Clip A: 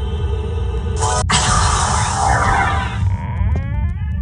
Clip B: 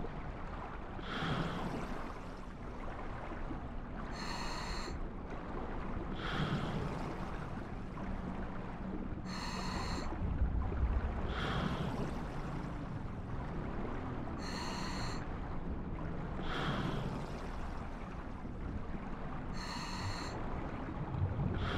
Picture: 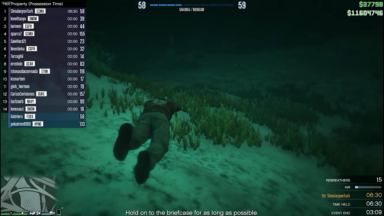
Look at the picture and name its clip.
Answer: B